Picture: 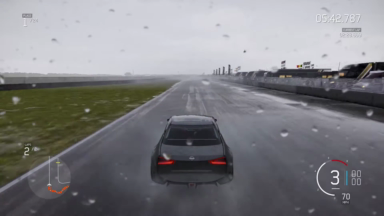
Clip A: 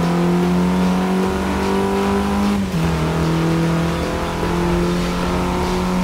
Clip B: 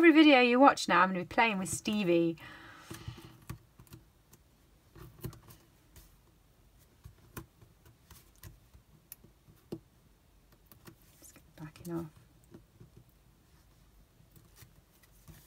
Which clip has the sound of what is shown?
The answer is A